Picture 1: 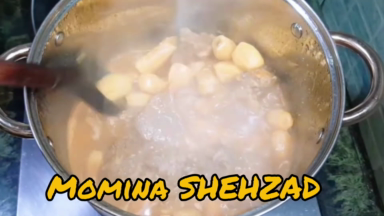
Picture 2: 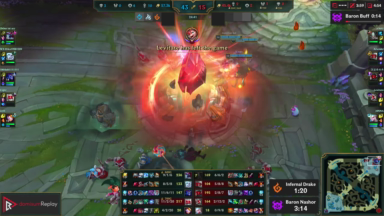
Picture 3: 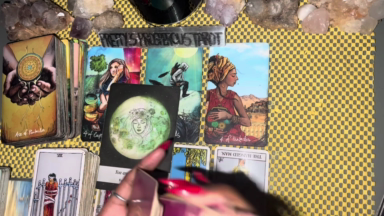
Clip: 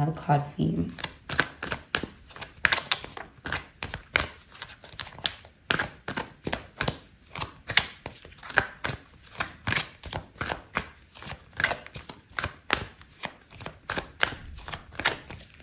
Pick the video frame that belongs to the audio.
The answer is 3